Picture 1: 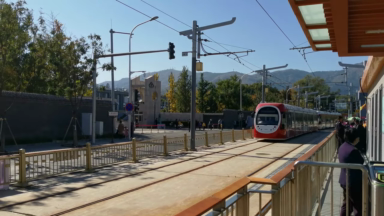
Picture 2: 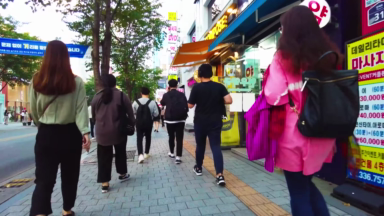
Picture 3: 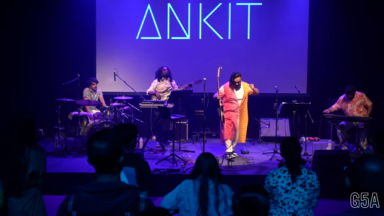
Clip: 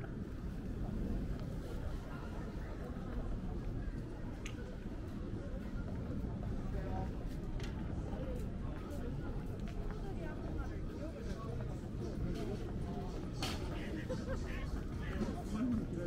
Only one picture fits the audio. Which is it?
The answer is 2